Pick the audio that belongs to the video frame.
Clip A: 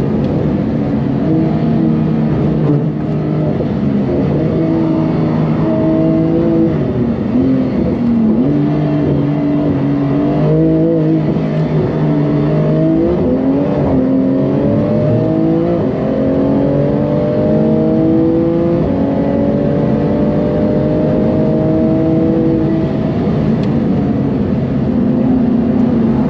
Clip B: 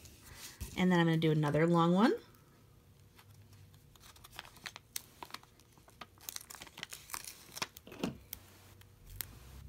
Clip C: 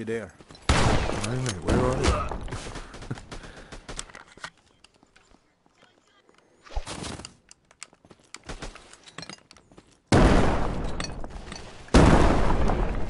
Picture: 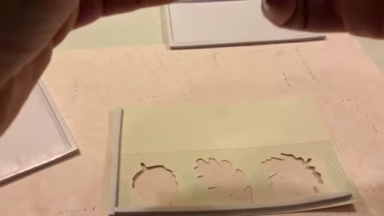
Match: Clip B